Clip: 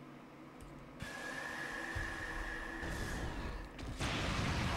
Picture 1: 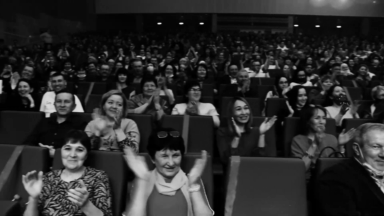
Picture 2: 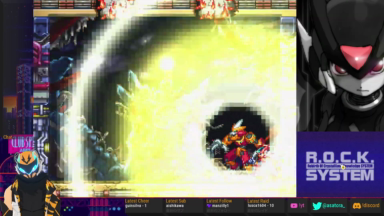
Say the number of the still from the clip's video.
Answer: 2